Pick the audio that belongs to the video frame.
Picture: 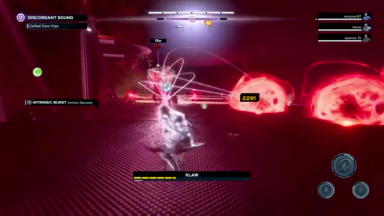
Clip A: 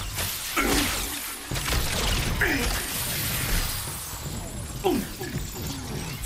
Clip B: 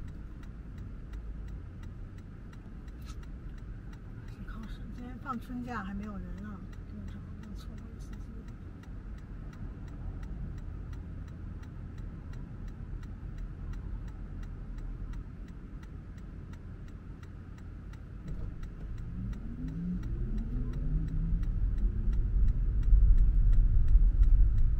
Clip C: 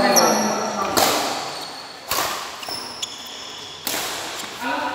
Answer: A